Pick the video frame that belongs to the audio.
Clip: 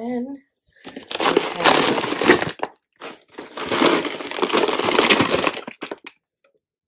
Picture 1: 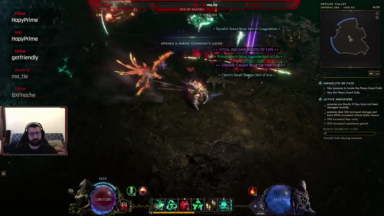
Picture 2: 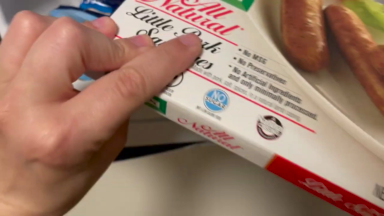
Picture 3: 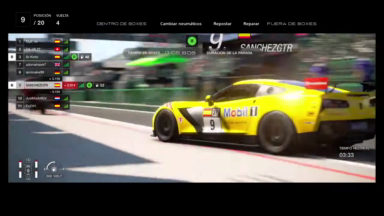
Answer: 2